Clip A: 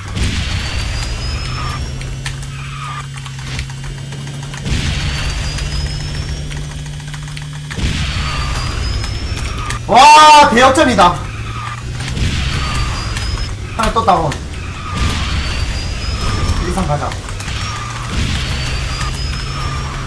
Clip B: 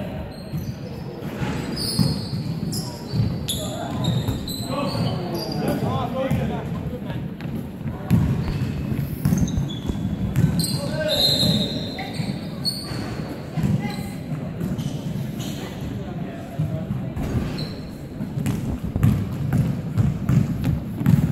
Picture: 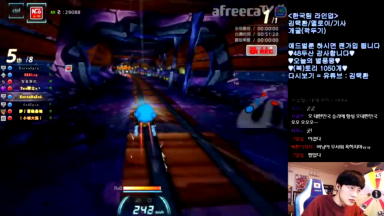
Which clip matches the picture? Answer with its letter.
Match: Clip A